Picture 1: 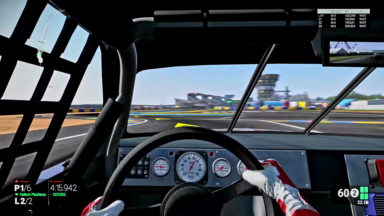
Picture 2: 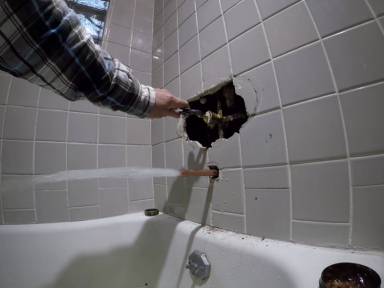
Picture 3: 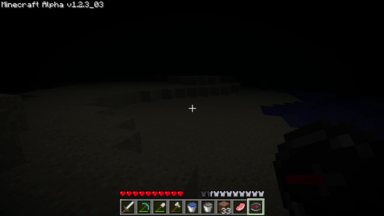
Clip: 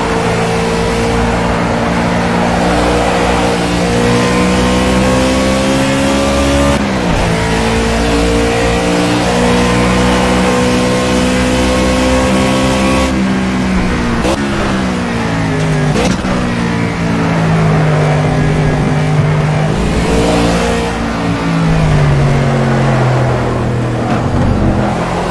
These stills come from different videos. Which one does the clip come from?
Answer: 1